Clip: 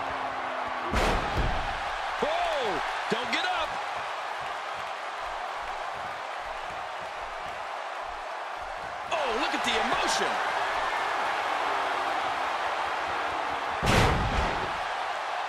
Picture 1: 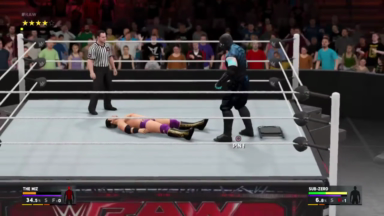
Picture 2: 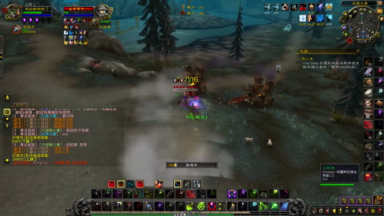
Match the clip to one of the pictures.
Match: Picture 1